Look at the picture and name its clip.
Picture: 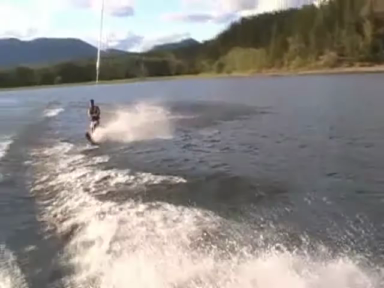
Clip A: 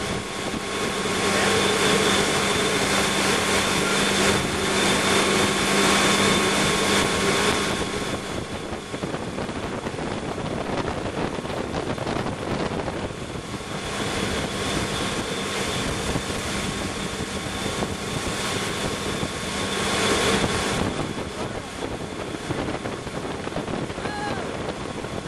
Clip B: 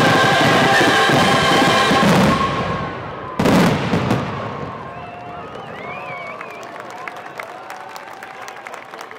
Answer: A